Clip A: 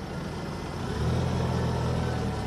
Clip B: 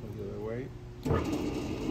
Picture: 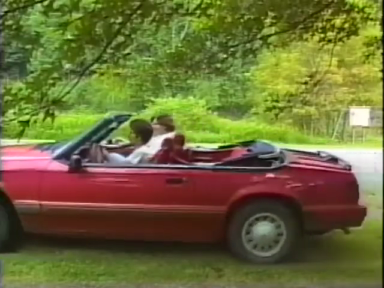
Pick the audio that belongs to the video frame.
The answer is A